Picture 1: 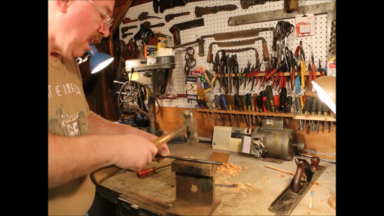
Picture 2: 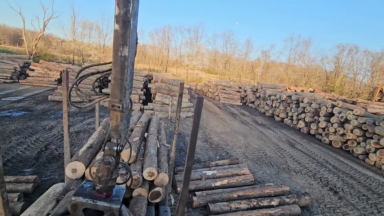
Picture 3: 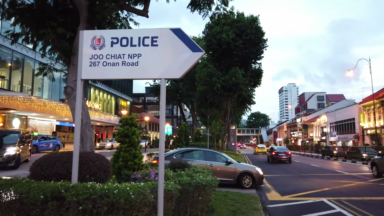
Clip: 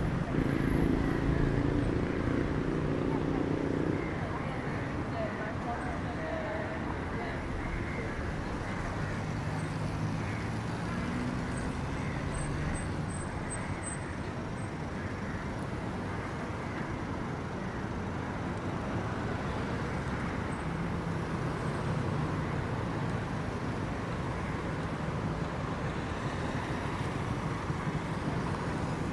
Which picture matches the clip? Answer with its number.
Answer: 3